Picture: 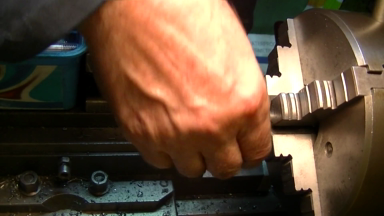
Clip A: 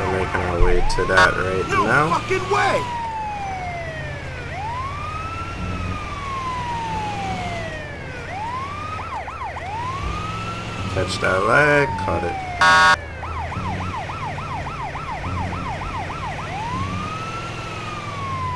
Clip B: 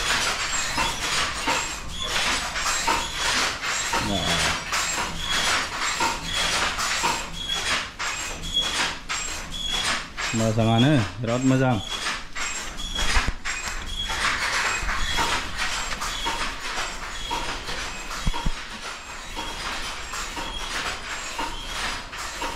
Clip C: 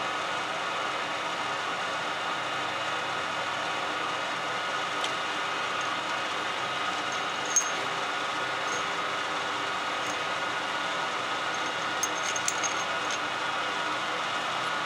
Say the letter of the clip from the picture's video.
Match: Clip C